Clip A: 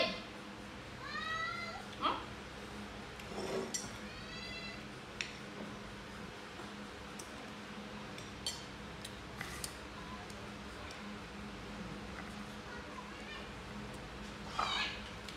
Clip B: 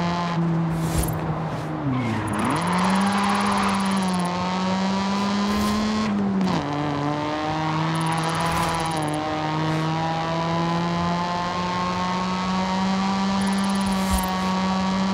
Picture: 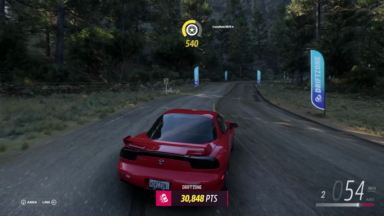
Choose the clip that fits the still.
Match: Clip B